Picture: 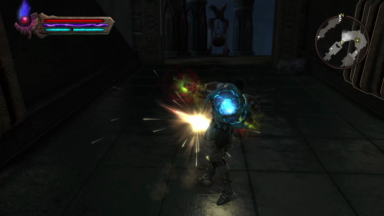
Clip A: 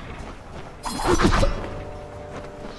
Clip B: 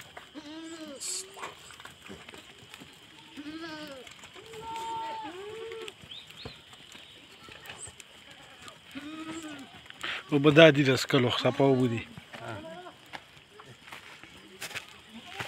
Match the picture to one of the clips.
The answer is A